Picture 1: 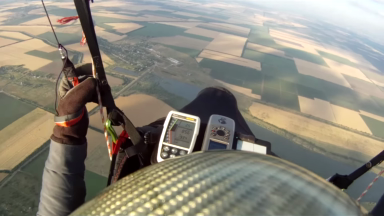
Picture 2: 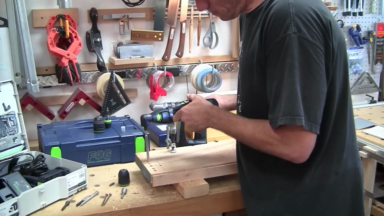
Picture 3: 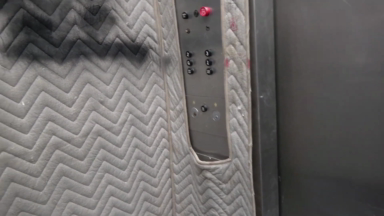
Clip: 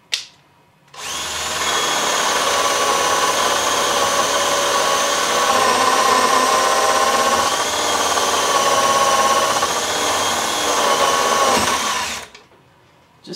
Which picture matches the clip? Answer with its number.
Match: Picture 2